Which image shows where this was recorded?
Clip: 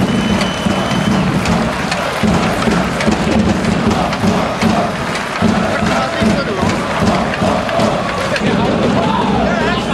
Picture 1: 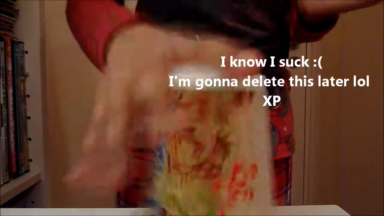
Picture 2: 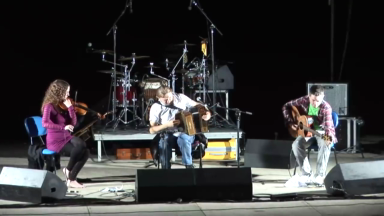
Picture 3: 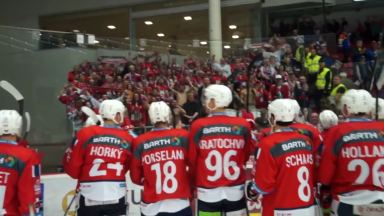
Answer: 3